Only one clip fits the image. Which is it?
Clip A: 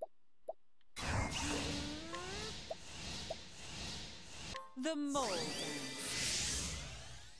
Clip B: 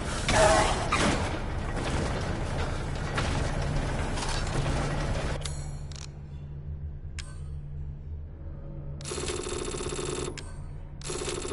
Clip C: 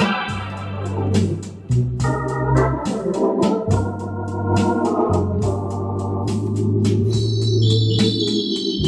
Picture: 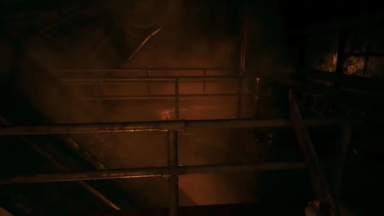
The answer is B